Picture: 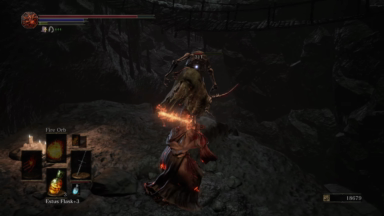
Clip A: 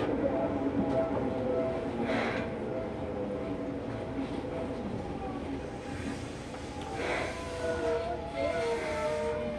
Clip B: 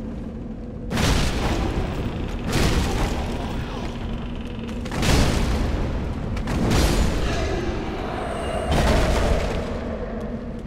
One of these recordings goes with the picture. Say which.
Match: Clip B